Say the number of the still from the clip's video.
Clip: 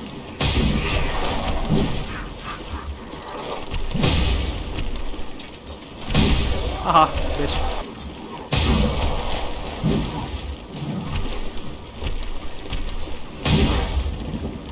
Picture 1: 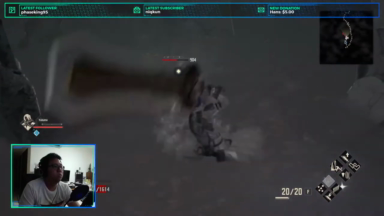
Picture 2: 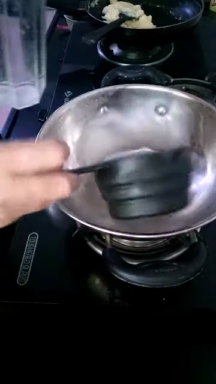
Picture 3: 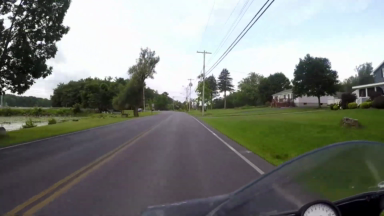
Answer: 1